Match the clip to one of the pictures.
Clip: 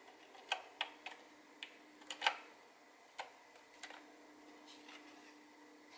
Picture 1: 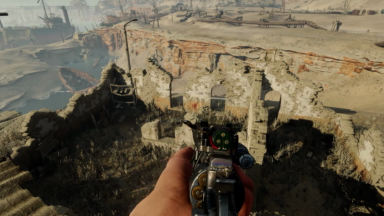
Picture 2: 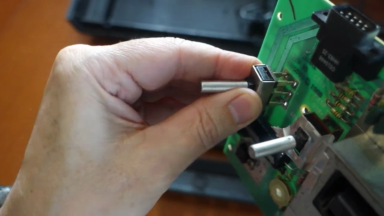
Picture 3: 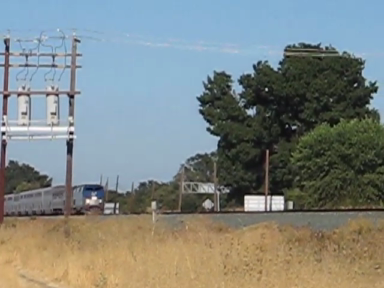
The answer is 2